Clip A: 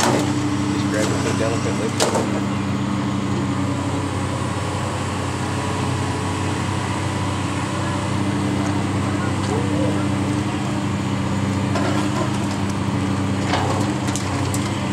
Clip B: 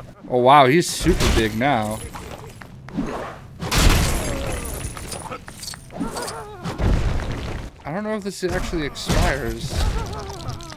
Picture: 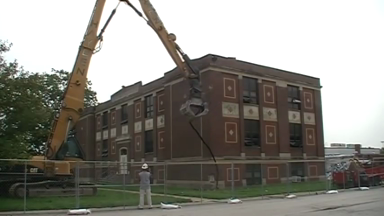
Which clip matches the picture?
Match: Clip A